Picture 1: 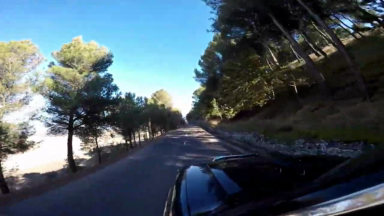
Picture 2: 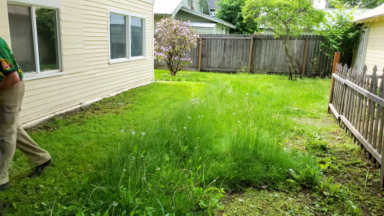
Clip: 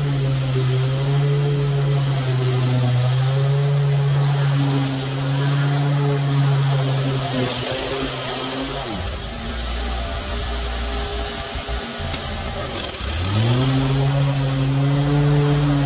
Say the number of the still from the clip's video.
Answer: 2